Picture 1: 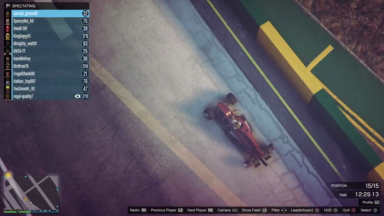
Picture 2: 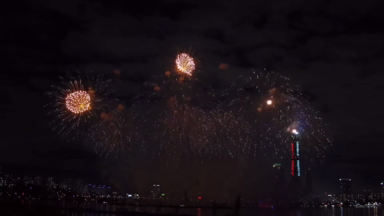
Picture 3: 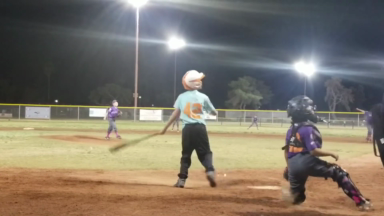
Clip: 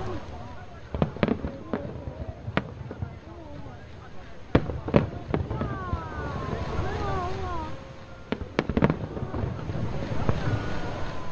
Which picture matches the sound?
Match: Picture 2